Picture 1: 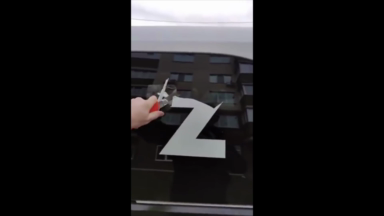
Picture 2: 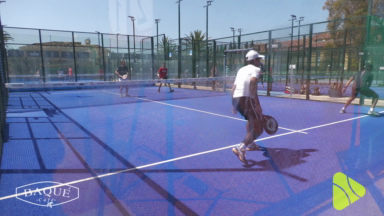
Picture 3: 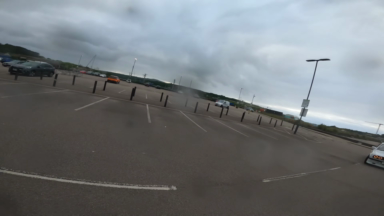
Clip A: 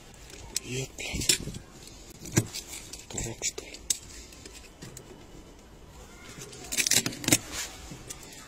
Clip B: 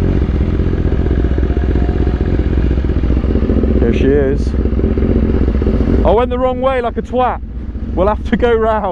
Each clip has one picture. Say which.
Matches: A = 1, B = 3